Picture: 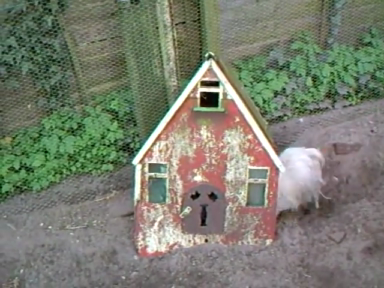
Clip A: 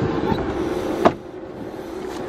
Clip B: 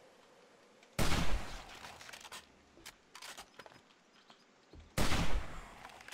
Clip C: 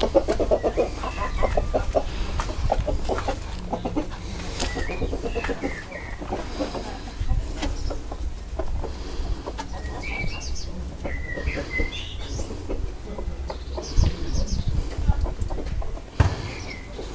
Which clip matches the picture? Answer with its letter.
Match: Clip C